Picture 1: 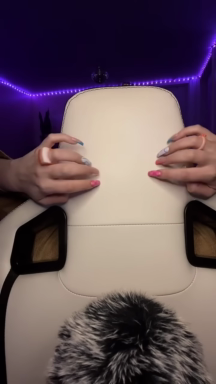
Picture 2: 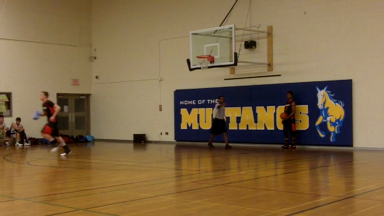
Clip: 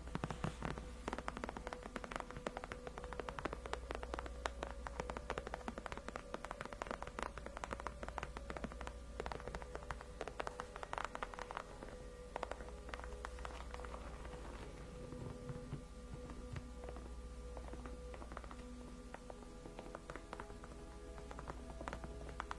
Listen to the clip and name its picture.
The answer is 1